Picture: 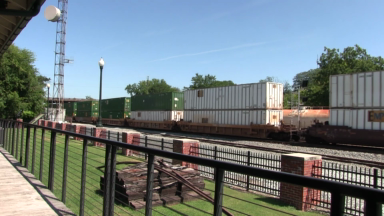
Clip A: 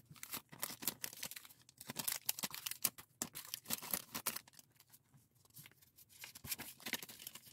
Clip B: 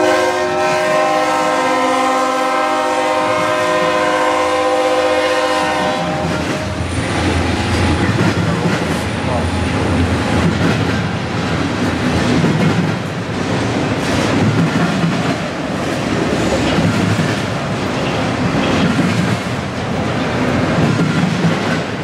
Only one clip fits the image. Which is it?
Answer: B